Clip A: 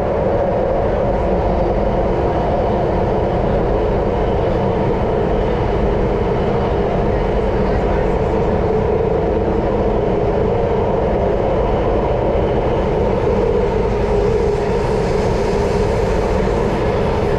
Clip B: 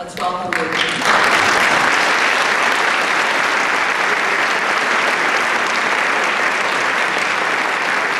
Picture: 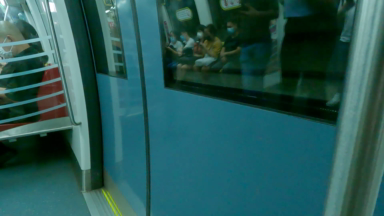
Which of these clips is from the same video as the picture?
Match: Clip A